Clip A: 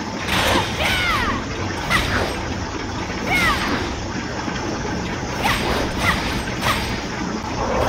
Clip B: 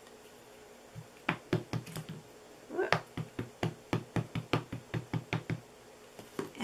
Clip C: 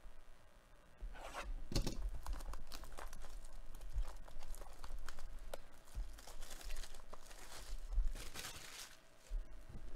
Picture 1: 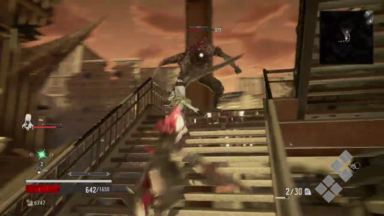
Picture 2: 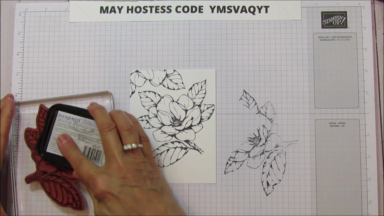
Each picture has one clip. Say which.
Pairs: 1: A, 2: B